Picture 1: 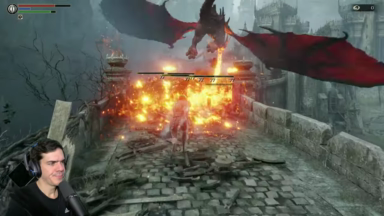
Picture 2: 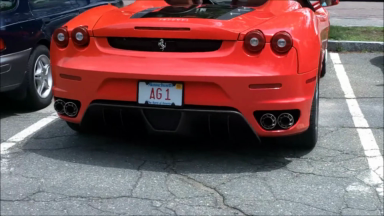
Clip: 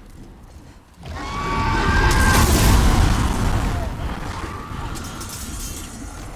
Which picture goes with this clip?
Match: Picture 1